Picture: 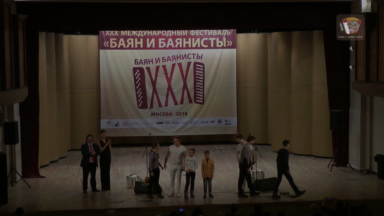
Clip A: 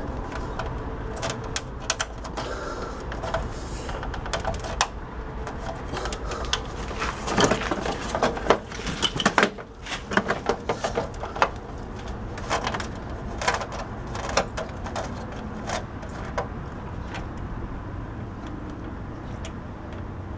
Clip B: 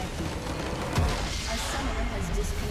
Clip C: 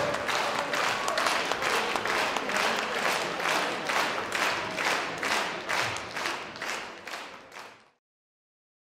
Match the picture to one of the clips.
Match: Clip C